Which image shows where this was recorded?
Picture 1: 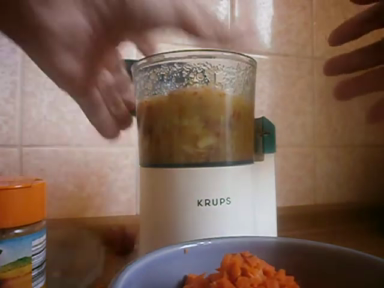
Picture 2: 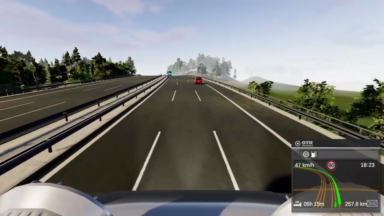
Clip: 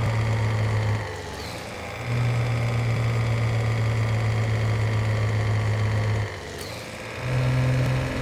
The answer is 2